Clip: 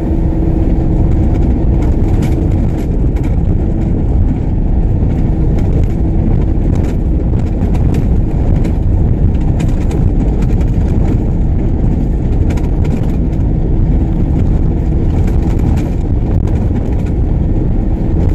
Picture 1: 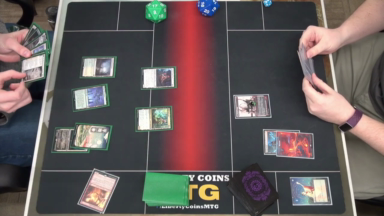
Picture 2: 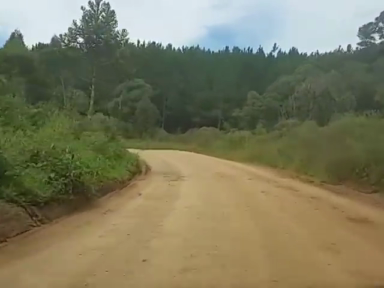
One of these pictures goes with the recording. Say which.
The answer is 2